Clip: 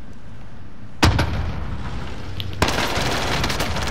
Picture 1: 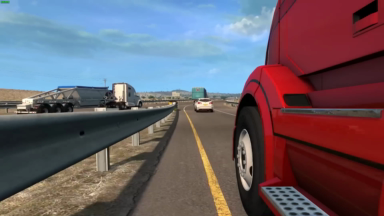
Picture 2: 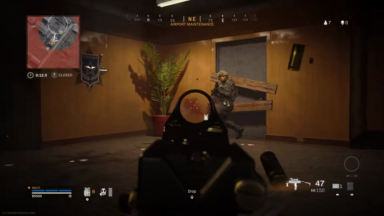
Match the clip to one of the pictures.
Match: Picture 2